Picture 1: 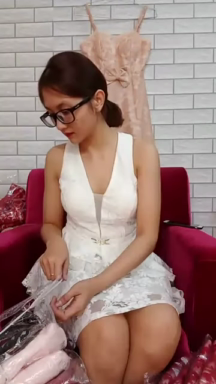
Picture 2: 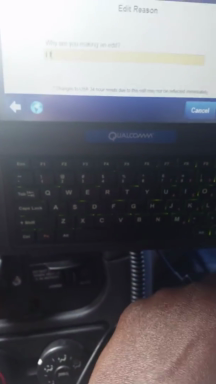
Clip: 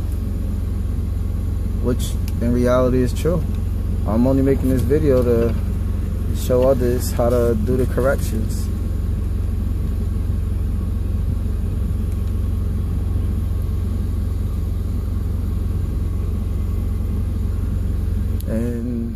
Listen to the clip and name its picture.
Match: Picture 2